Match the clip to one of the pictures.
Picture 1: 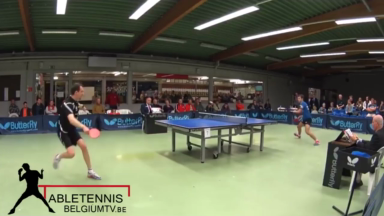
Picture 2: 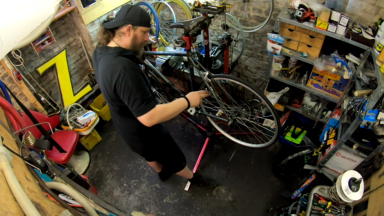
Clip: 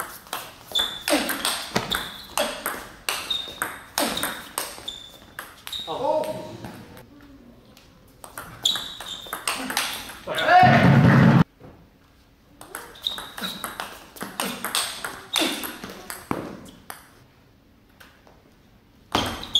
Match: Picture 1